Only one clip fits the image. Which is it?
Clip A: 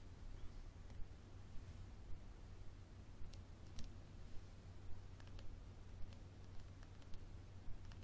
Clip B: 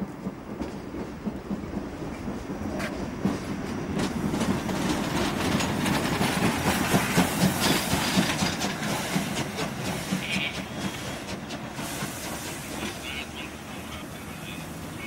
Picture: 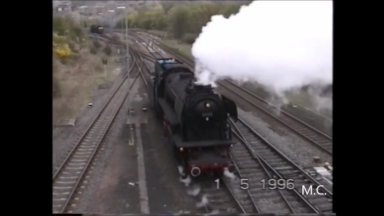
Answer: B